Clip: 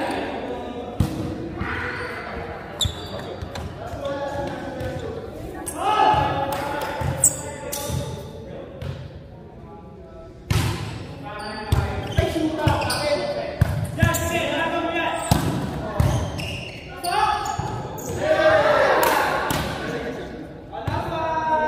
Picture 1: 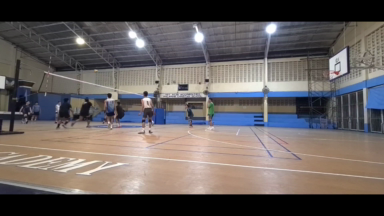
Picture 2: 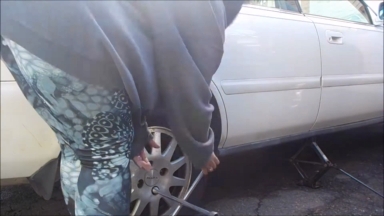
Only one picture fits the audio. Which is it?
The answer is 1